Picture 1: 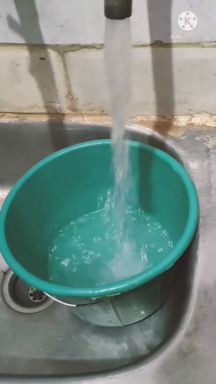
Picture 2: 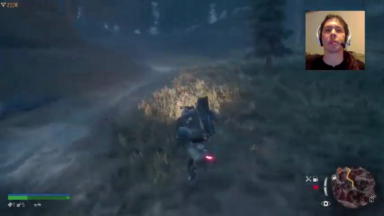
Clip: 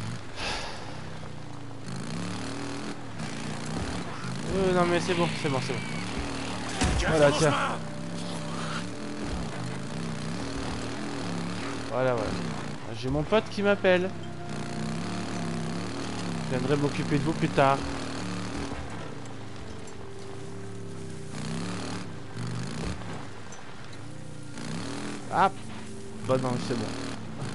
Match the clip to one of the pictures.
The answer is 2